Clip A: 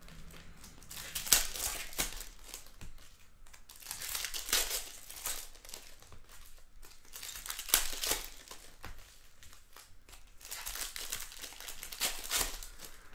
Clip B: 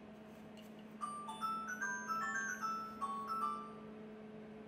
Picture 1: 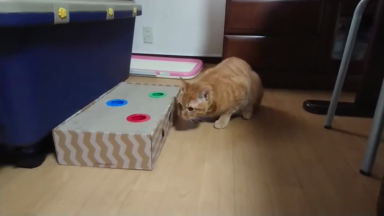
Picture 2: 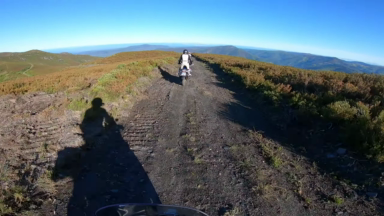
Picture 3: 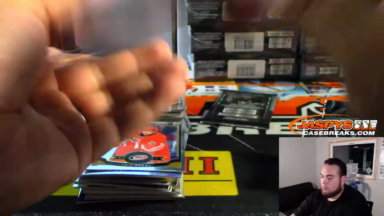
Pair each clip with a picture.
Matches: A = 3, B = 1